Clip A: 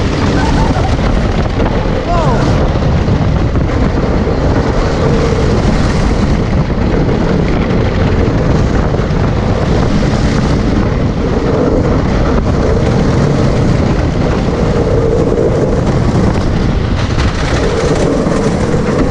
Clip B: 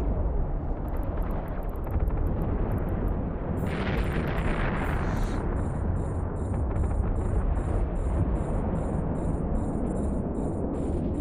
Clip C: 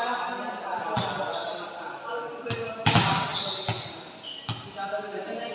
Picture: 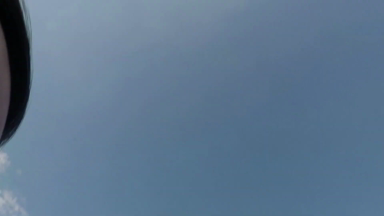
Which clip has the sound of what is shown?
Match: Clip A